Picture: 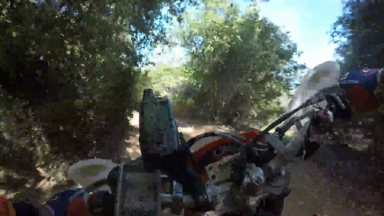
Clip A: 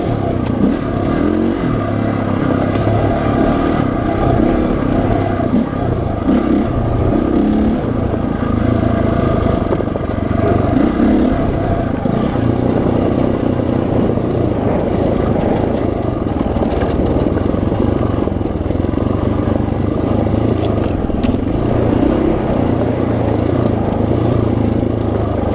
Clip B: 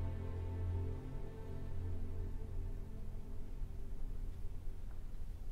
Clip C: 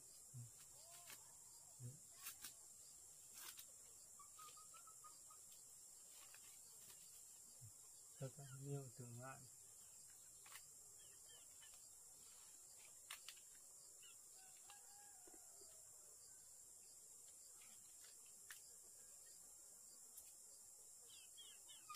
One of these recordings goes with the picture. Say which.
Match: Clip A